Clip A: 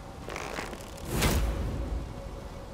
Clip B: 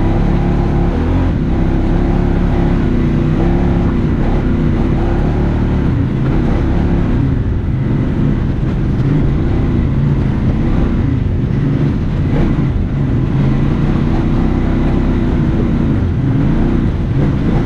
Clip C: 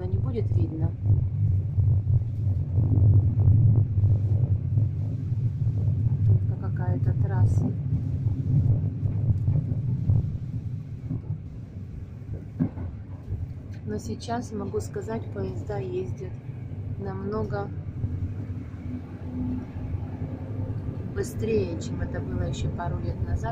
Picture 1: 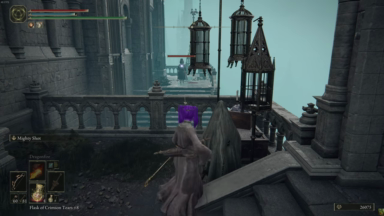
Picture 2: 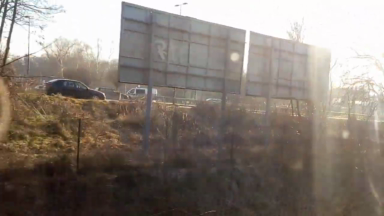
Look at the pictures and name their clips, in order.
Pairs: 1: A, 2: C